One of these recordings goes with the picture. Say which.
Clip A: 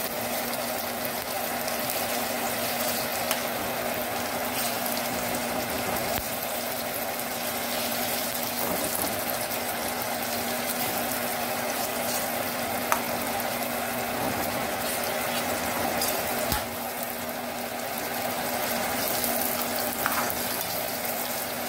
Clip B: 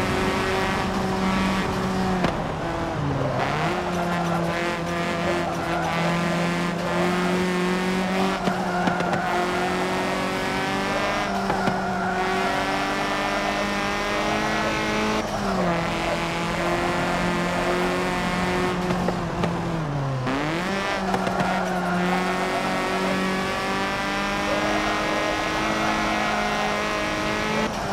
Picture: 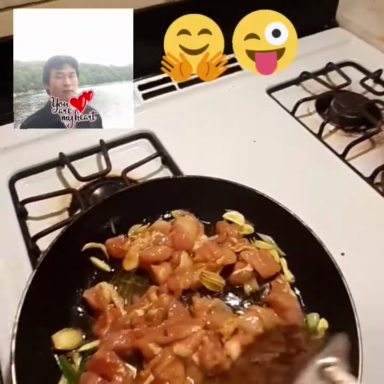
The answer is A